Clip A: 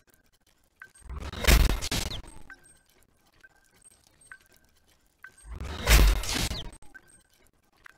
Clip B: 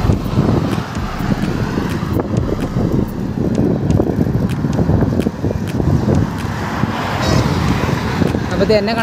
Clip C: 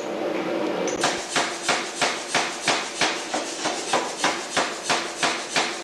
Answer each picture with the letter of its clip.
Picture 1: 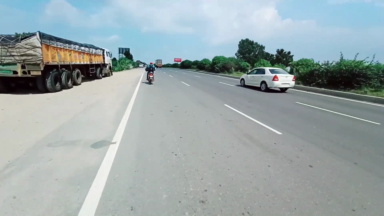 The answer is B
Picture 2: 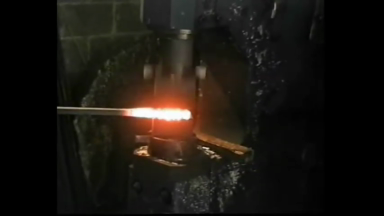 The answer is C